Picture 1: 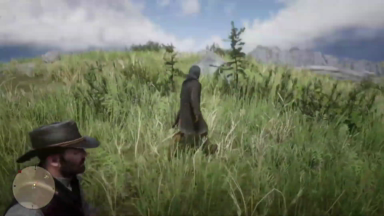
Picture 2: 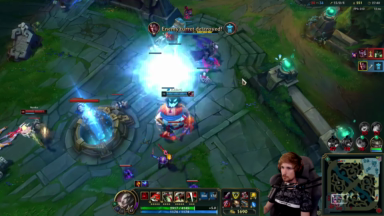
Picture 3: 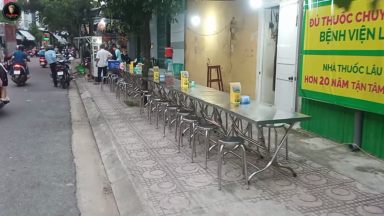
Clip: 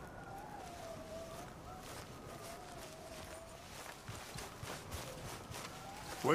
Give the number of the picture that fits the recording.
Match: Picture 1